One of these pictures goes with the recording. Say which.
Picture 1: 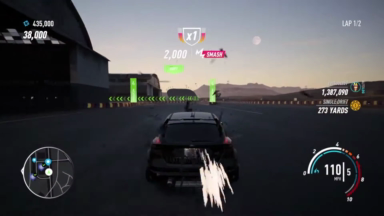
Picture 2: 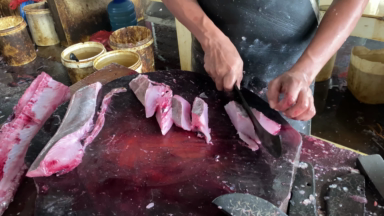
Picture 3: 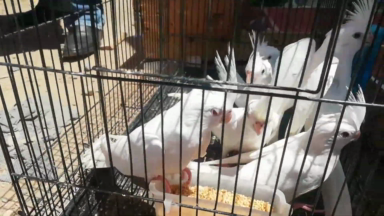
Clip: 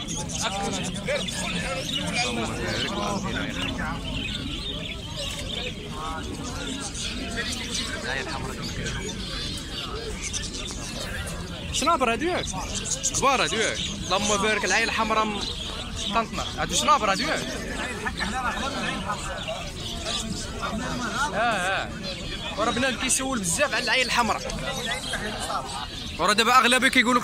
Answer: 3